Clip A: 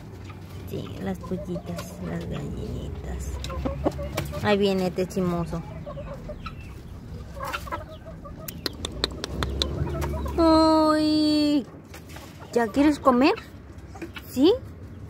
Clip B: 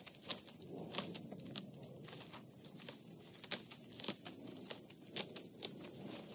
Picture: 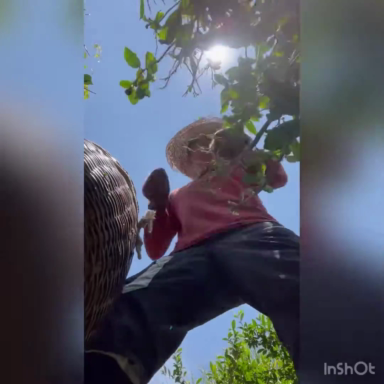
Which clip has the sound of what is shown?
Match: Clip B